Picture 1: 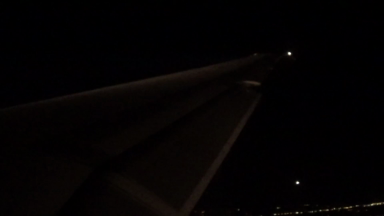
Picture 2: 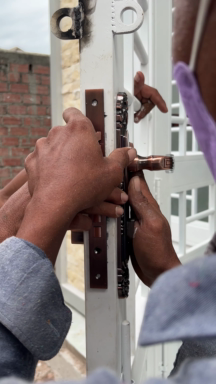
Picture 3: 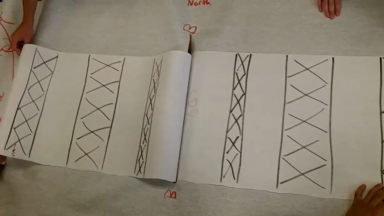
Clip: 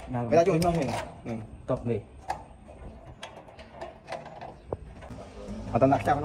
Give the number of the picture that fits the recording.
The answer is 2